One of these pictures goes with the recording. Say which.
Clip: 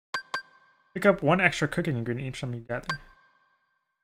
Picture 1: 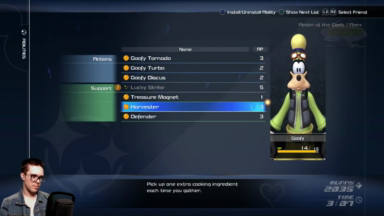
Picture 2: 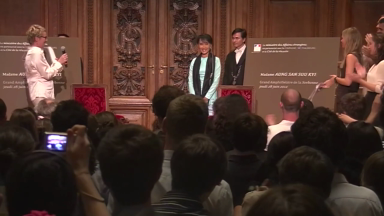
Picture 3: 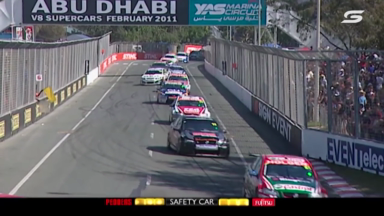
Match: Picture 1